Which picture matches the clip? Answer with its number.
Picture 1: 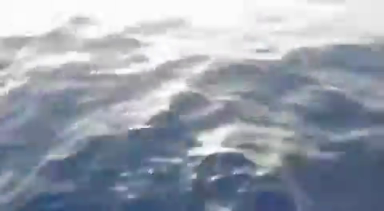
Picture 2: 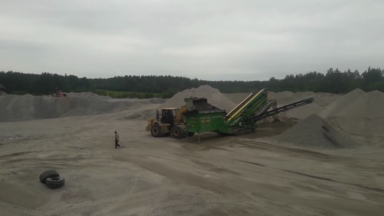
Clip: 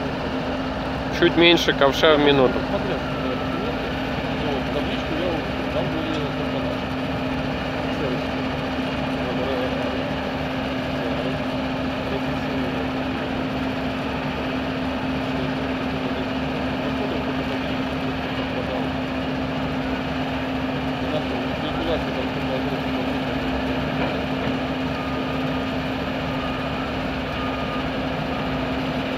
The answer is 2